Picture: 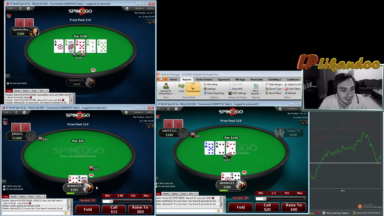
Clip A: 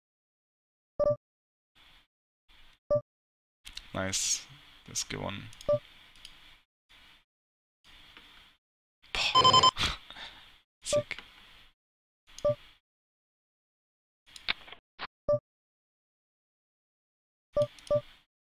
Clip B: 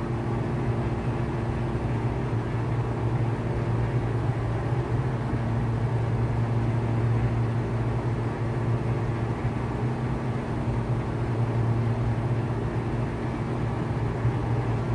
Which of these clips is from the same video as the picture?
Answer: A